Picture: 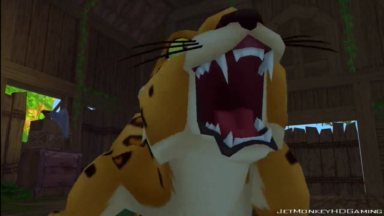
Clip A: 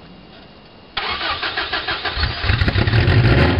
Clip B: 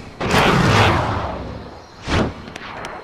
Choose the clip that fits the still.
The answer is B